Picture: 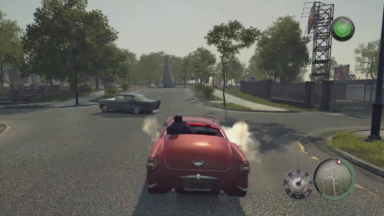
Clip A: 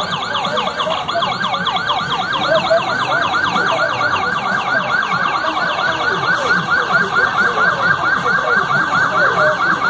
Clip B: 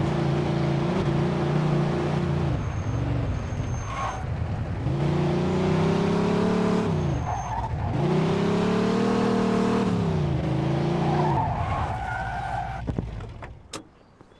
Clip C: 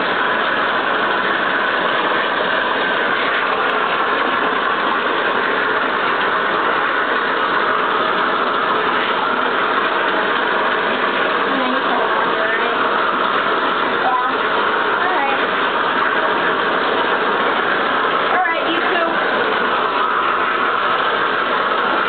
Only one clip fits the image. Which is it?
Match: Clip B